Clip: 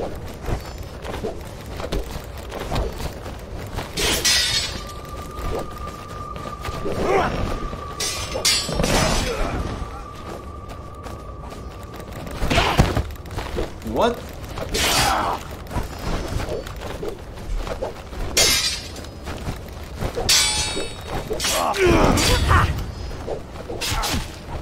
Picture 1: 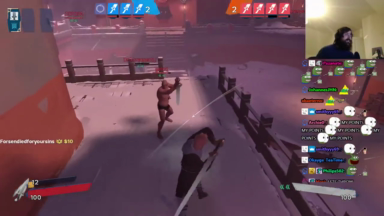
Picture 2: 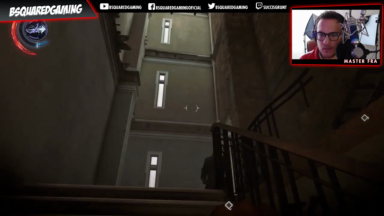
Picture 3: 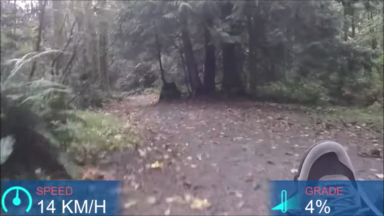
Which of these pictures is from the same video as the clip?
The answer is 1